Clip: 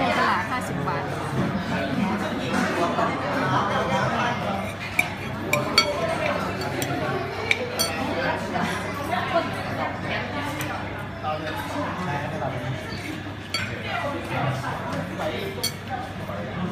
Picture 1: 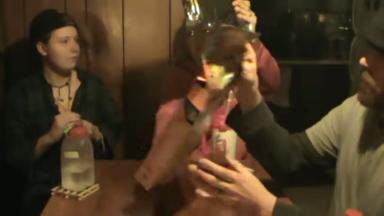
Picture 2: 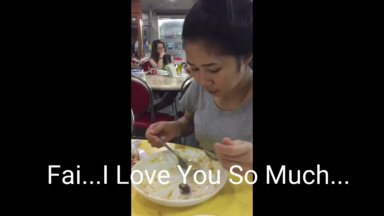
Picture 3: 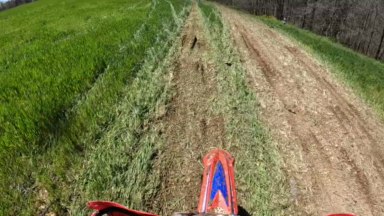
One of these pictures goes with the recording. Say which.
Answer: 2